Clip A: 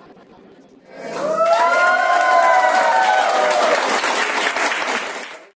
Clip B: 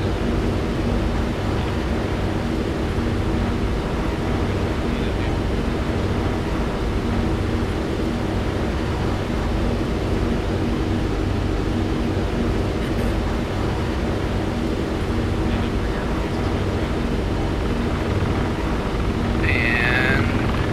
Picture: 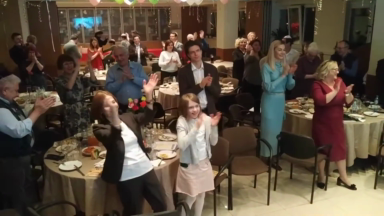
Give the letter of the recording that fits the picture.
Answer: A